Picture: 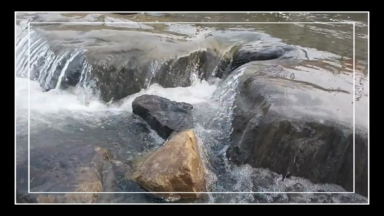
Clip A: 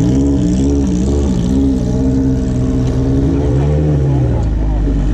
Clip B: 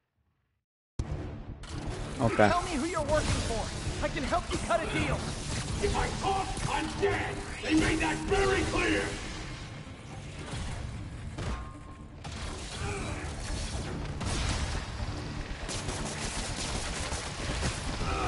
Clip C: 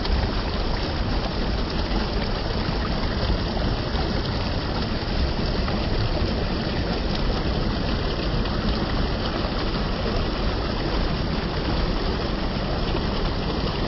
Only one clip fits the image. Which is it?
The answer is C